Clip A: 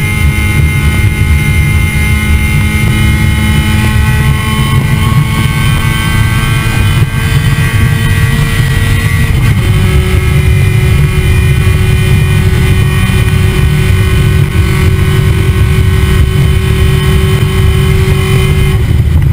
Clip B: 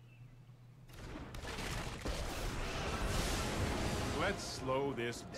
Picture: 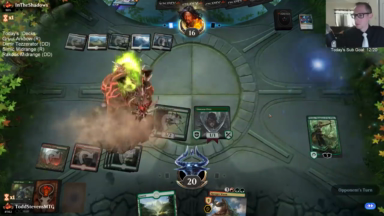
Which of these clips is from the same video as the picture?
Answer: B